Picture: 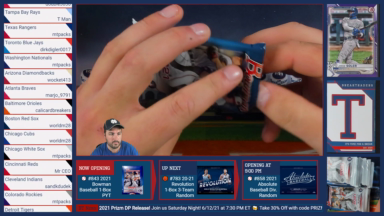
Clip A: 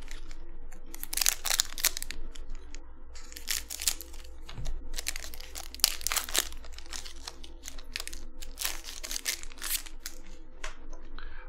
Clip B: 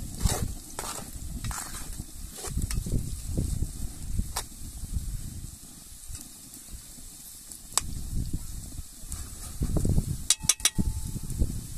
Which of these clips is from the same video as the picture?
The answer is A